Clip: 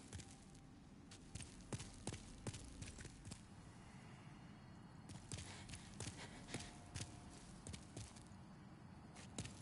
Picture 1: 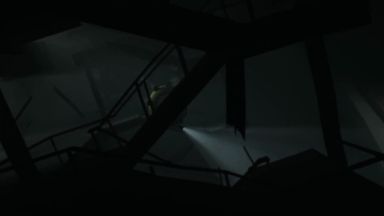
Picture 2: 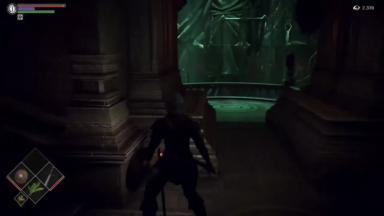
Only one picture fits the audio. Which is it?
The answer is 2